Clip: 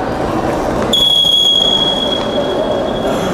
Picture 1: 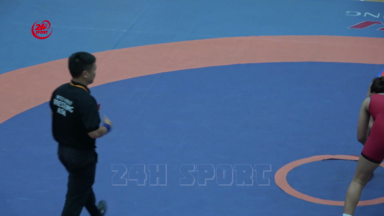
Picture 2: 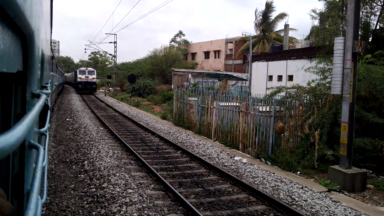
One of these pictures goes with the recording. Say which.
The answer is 1